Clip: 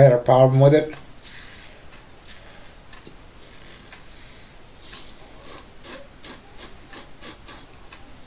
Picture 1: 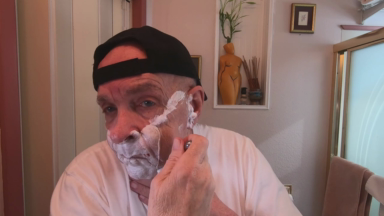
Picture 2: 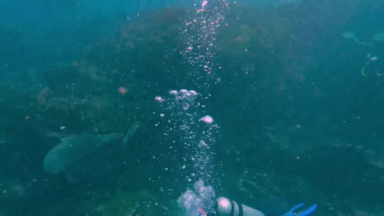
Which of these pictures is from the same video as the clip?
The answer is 1